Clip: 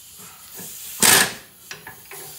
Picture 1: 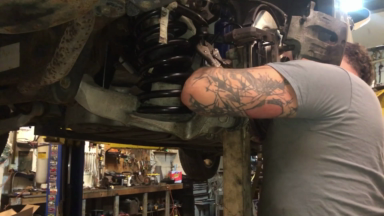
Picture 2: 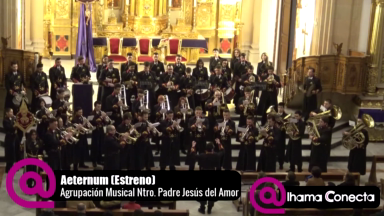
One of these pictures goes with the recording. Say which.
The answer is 1